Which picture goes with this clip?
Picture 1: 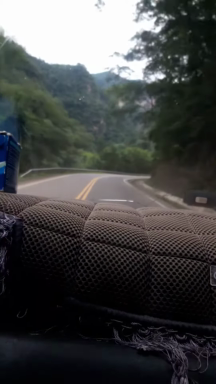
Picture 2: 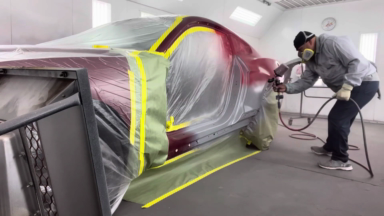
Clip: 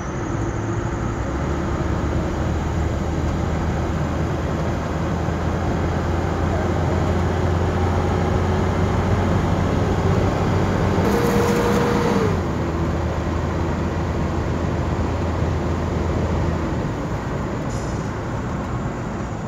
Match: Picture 1